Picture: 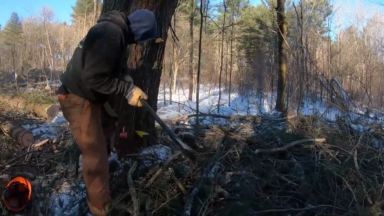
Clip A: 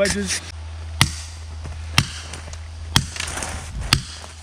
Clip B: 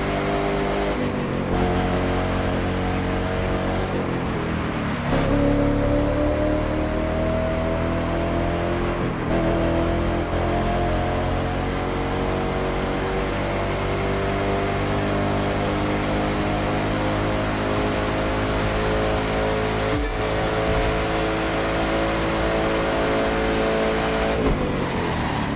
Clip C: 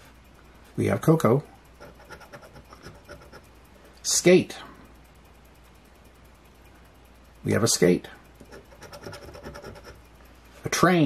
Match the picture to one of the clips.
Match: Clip A